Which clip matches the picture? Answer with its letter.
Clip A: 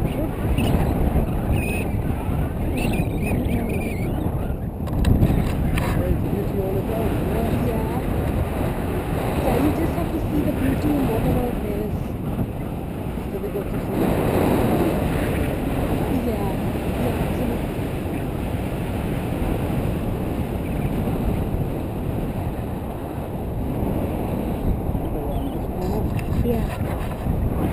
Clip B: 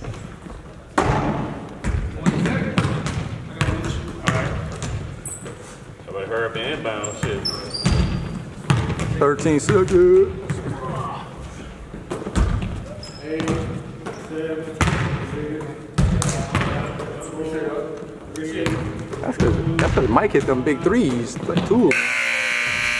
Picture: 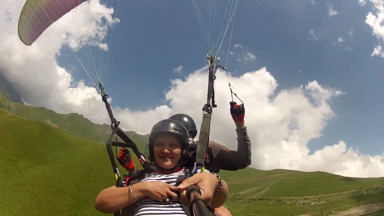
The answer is A